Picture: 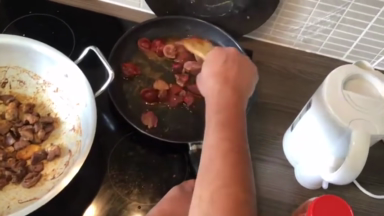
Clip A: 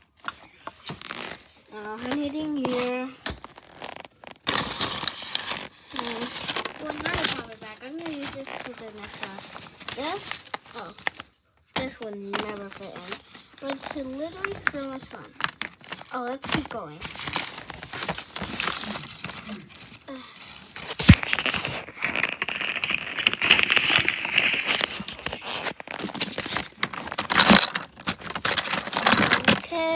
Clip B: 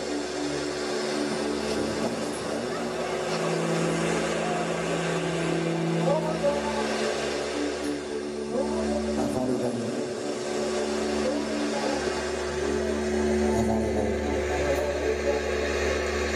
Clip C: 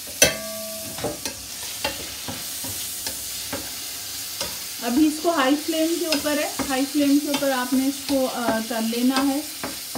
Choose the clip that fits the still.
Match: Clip C